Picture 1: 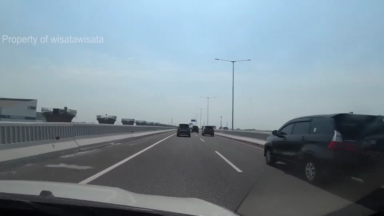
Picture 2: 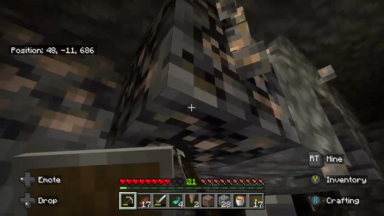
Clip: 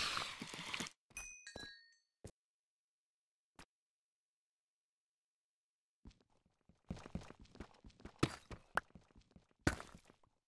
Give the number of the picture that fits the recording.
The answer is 2